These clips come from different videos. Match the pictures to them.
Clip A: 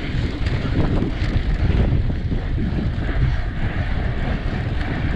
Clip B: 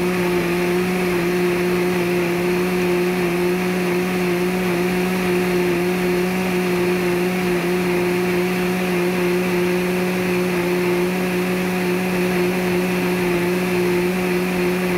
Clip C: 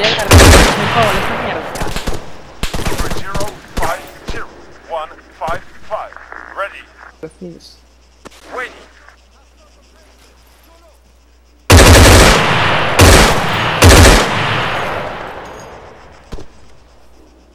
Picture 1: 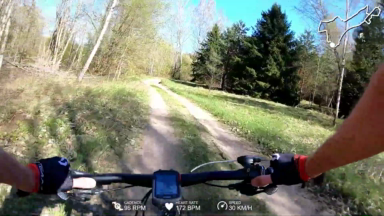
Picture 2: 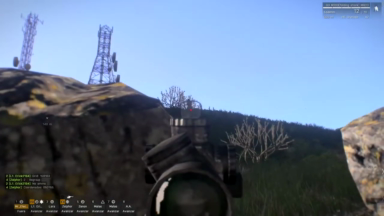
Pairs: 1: A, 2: C